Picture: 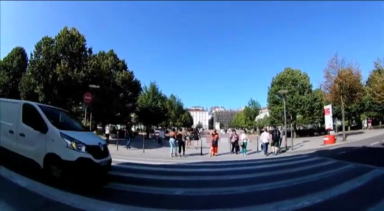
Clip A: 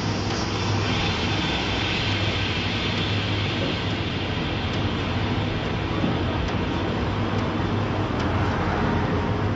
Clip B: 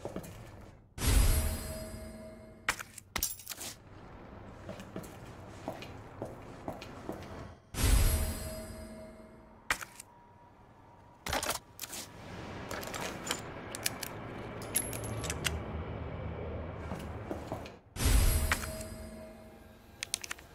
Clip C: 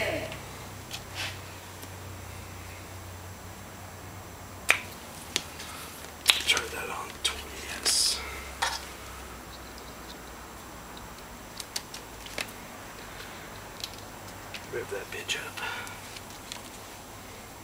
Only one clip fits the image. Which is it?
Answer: A